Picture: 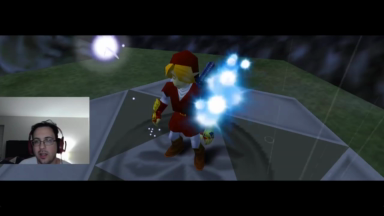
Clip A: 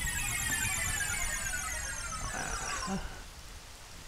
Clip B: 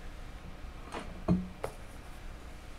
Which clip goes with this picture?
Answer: A